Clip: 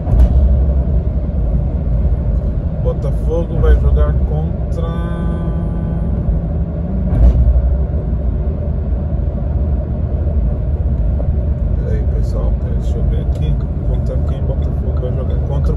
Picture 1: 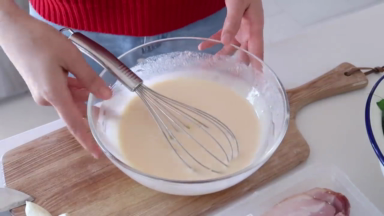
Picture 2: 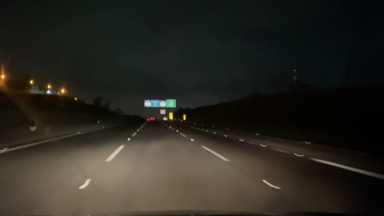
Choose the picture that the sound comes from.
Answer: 2